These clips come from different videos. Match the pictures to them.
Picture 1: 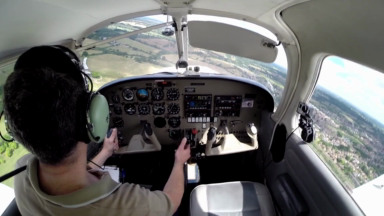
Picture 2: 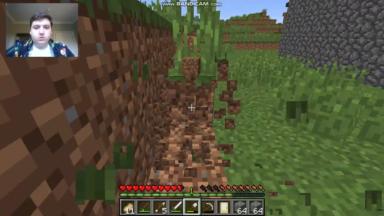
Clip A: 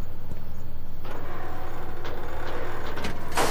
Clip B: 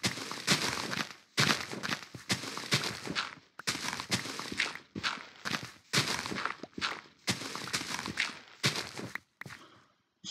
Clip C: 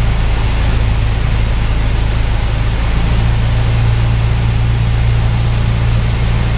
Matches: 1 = C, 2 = B